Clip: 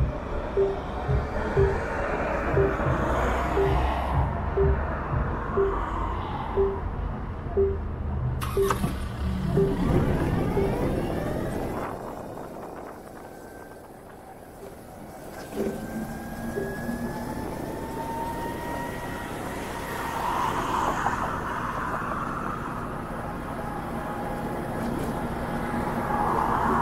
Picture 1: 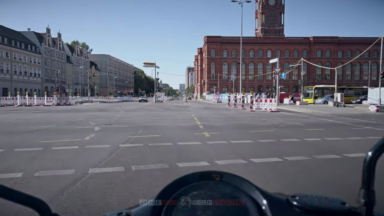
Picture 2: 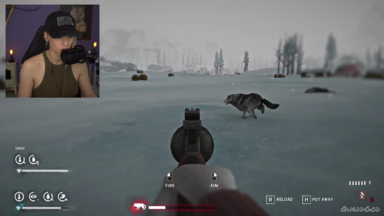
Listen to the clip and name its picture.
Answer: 1